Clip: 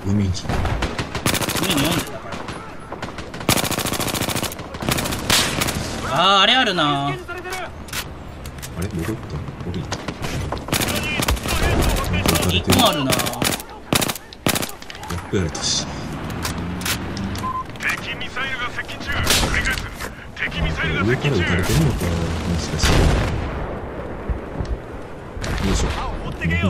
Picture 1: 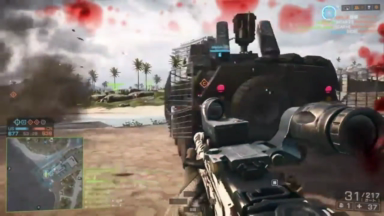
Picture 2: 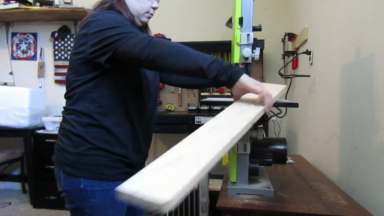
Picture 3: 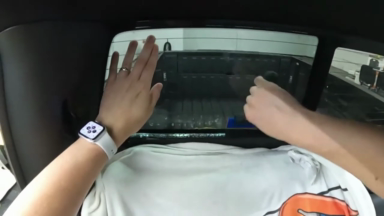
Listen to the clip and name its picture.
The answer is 1